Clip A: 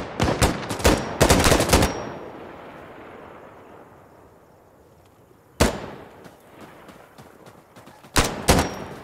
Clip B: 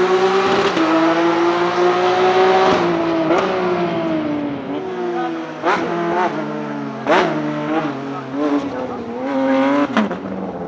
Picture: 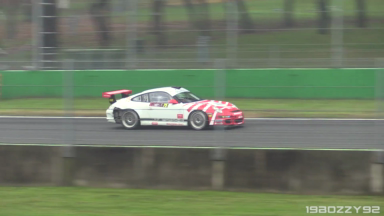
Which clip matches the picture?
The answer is B